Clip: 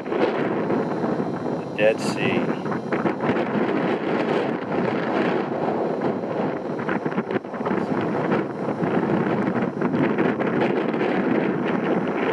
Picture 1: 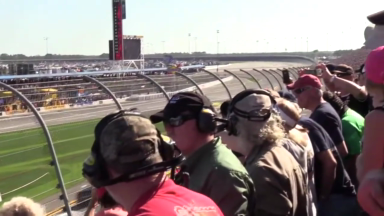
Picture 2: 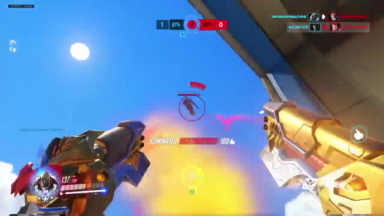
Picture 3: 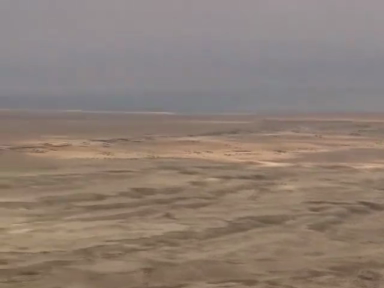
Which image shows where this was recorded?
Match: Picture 3